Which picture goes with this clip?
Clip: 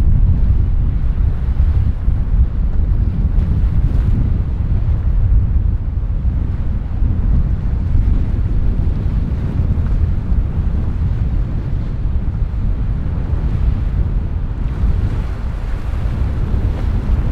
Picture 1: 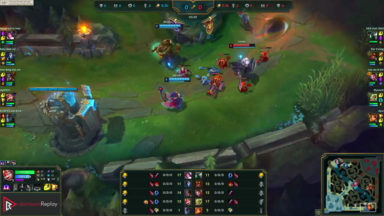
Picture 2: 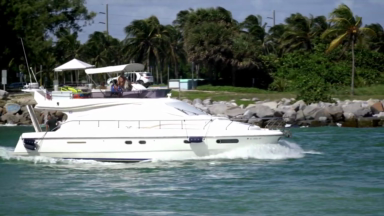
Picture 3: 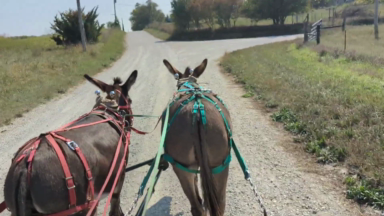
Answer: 2